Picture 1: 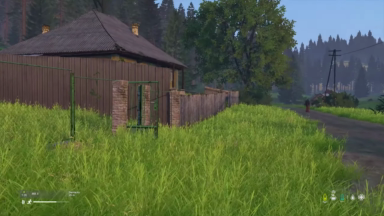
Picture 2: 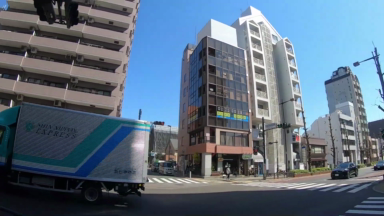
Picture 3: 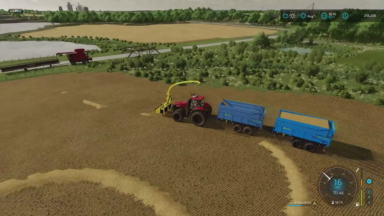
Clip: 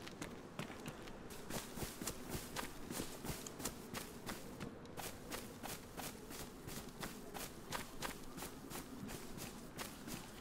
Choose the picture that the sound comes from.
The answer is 1